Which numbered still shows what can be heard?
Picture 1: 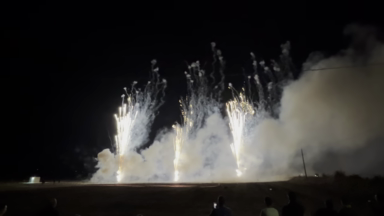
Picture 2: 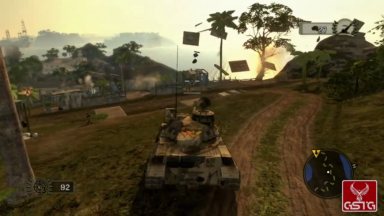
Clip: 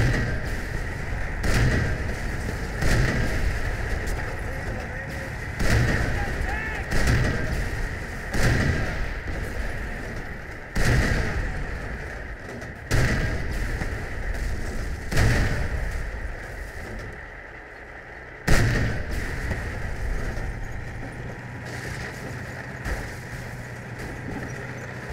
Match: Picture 2